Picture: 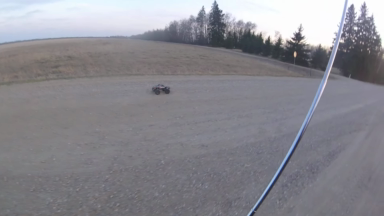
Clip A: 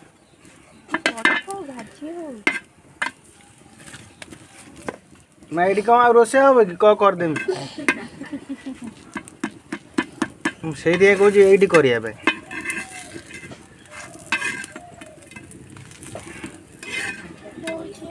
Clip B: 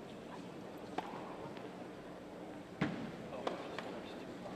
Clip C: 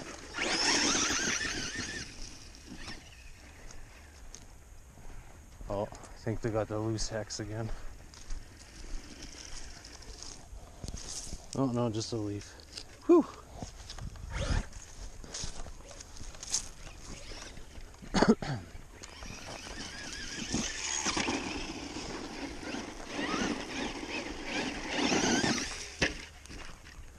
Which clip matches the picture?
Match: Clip C